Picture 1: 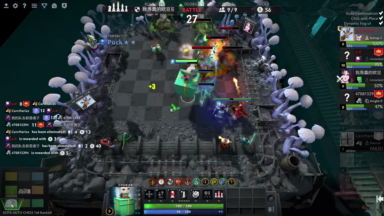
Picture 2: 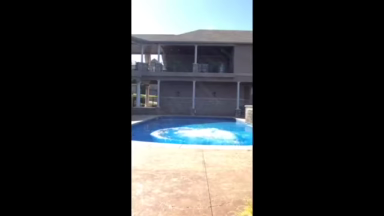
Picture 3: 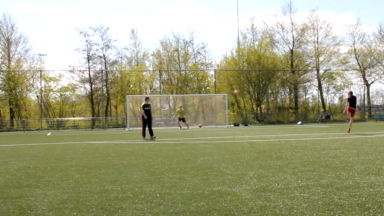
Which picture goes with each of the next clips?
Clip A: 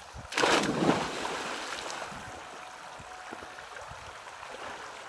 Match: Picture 2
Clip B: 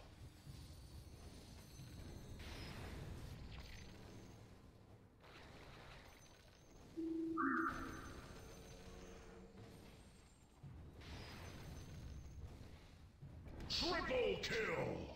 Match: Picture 1